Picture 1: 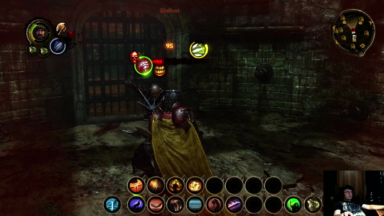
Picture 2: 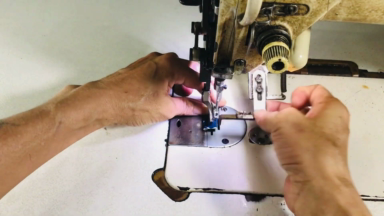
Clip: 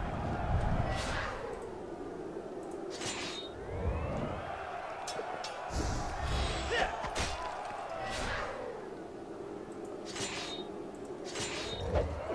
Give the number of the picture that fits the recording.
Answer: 1